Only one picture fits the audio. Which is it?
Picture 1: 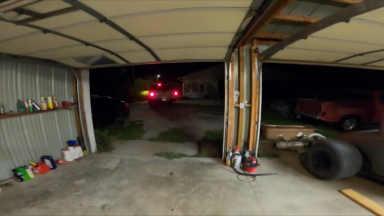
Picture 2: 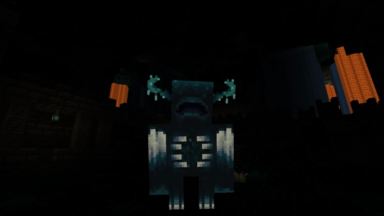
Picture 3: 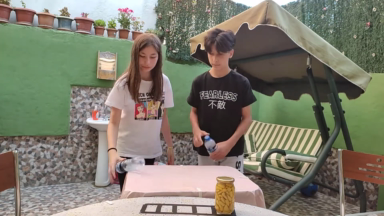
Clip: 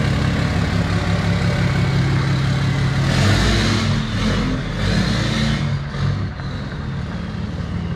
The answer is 1